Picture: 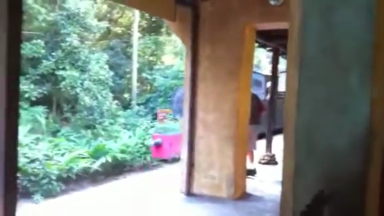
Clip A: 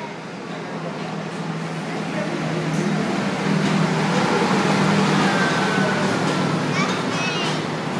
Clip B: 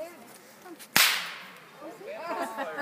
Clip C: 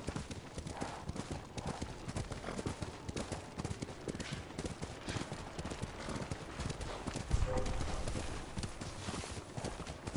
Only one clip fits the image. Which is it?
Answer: A